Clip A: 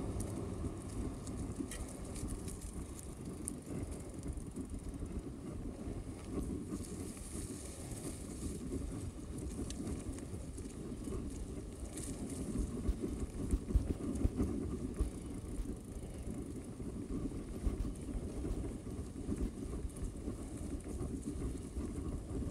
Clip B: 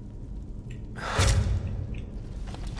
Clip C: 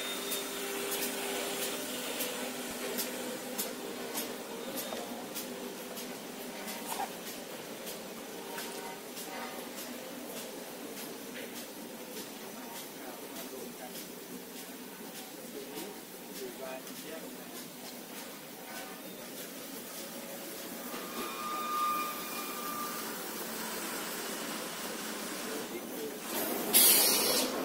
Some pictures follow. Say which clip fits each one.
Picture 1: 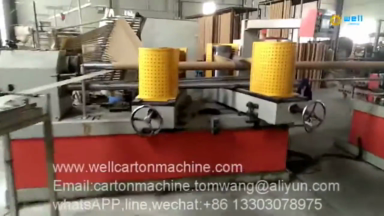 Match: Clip C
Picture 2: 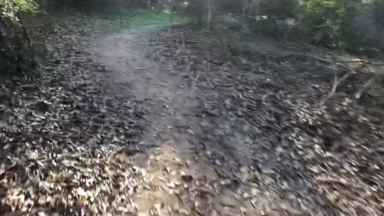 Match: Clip A